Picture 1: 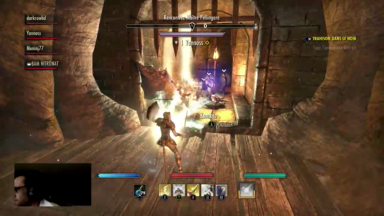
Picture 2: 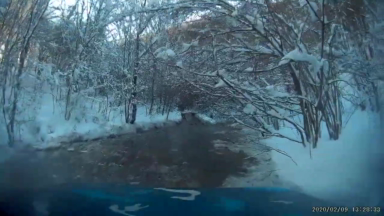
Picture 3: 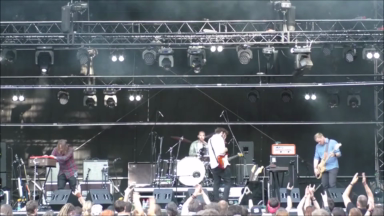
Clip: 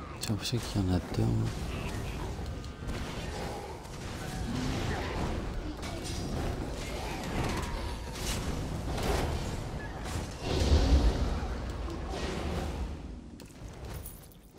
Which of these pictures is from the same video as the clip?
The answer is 1